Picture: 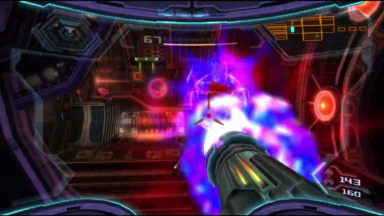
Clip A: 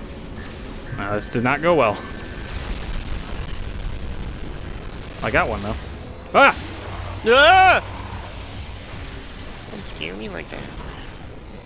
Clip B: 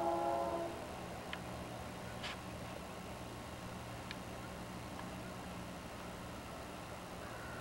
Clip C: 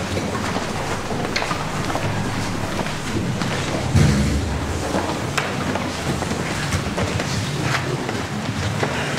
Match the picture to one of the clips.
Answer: A